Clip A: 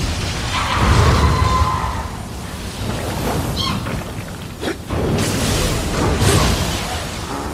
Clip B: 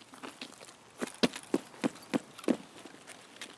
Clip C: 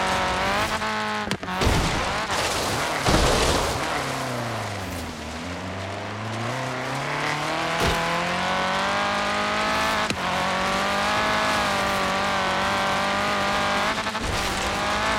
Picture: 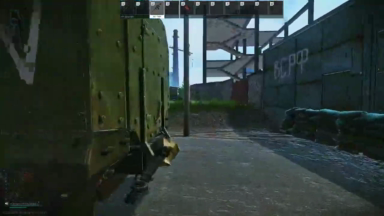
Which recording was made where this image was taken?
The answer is B